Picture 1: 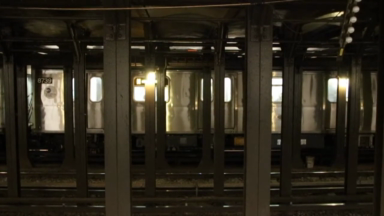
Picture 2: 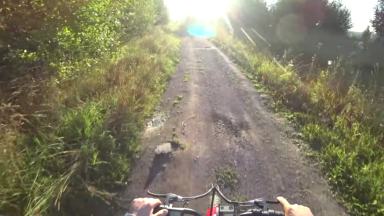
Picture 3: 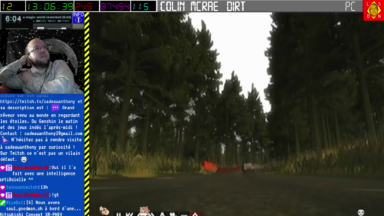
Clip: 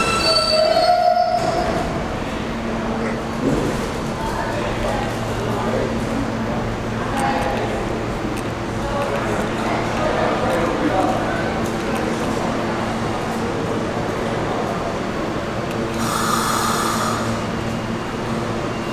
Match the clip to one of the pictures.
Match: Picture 1